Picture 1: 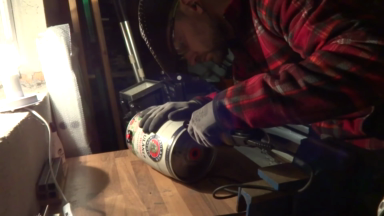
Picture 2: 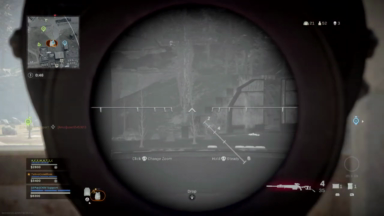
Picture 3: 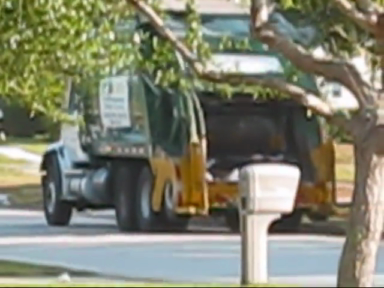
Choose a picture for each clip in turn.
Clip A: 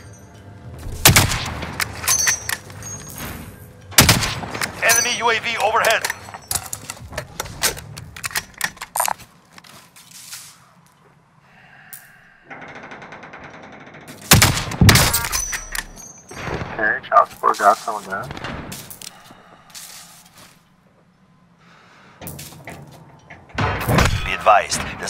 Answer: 2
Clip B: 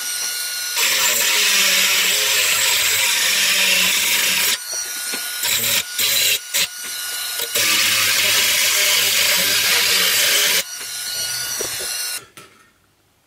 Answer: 1